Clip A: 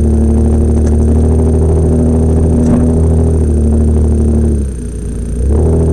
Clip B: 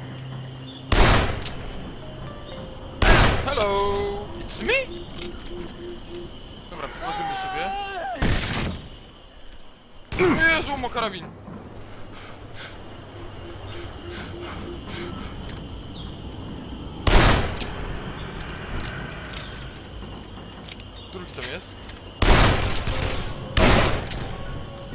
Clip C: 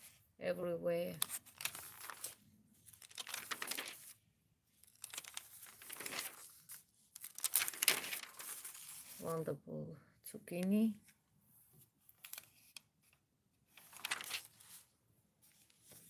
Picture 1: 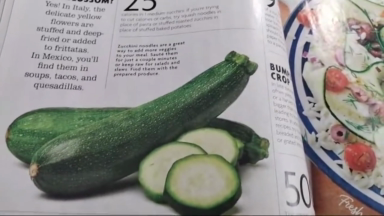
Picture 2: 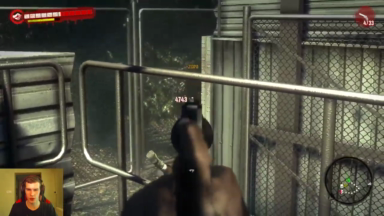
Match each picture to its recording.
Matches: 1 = C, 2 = B